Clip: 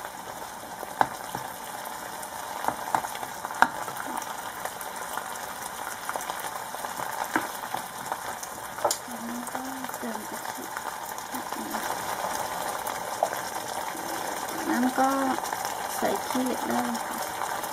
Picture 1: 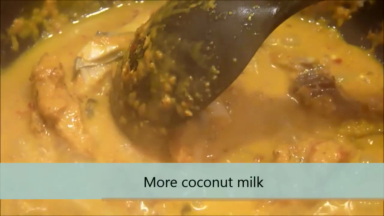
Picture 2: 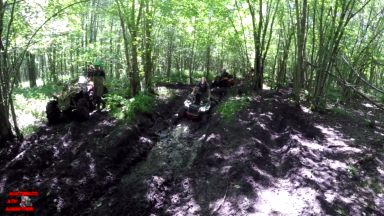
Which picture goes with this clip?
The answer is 1